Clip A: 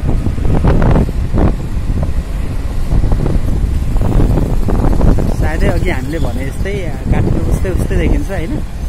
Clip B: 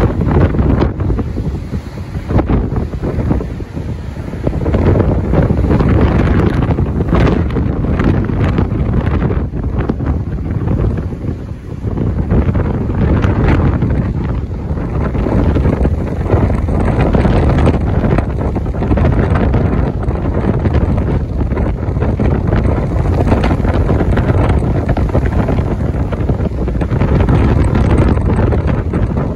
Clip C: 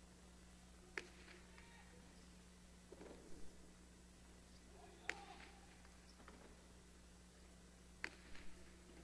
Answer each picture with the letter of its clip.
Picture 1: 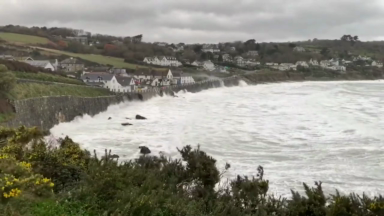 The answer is B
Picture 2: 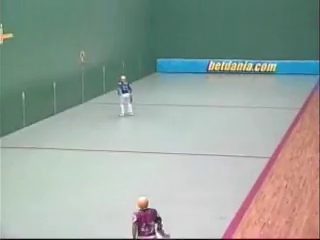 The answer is C